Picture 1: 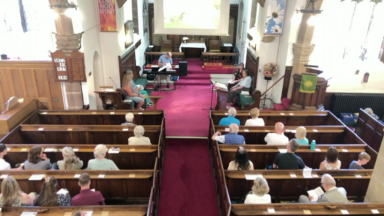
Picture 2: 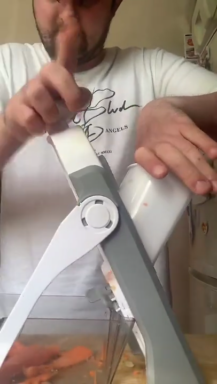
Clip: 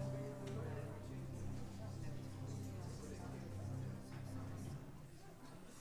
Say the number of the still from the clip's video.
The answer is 1